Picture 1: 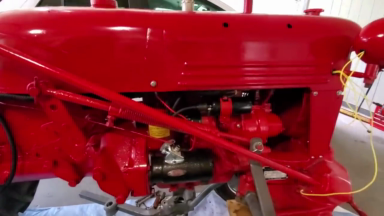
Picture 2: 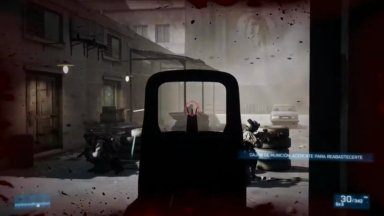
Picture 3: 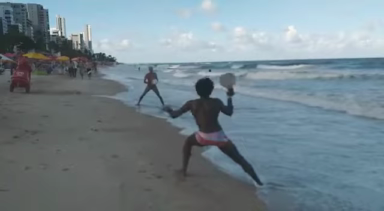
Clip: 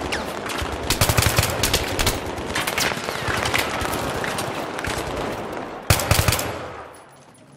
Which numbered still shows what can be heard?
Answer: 2